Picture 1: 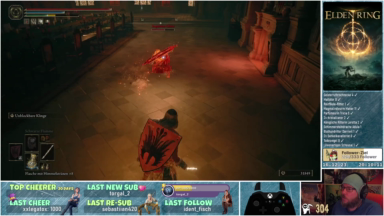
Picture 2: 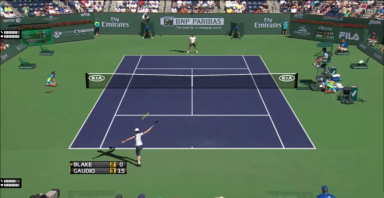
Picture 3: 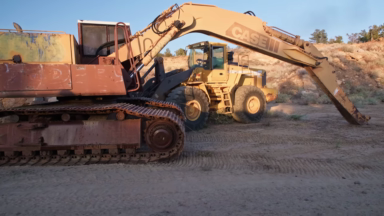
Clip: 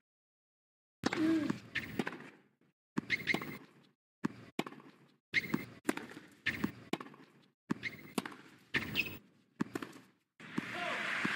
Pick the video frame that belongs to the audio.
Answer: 2